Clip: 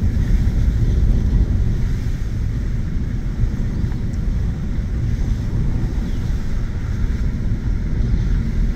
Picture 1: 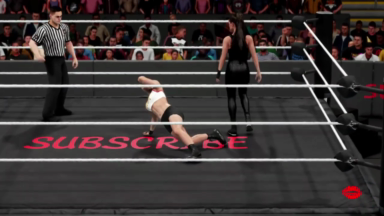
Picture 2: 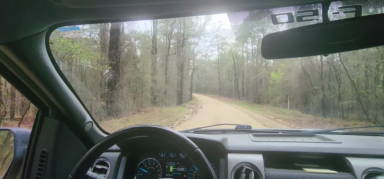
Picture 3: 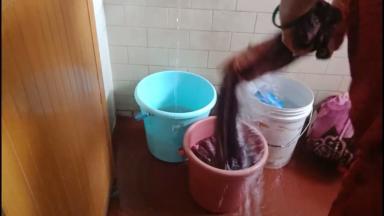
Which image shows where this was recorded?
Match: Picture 2